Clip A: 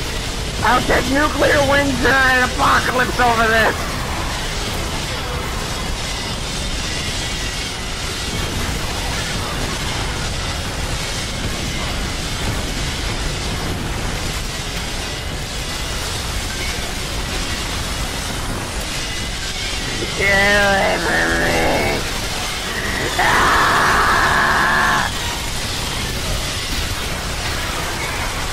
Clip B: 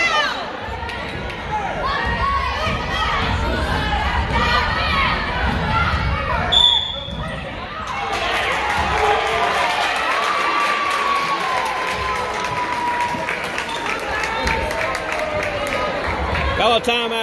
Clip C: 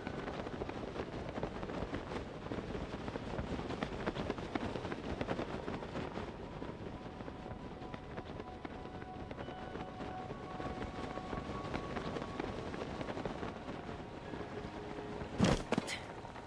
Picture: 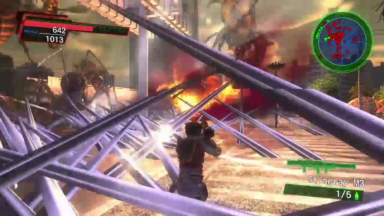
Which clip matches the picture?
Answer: A